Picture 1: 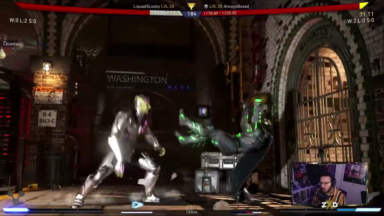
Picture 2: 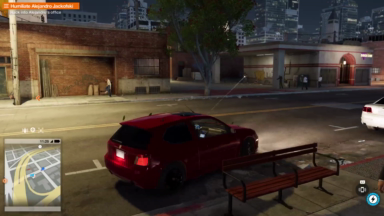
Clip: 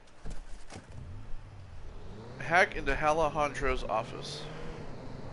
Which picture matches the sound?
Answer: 2